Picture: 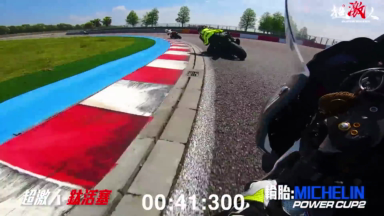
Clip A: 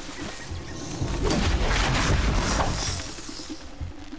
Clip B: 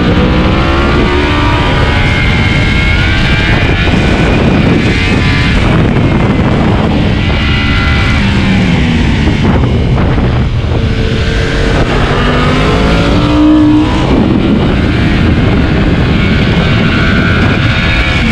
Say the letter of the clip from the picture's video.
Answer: B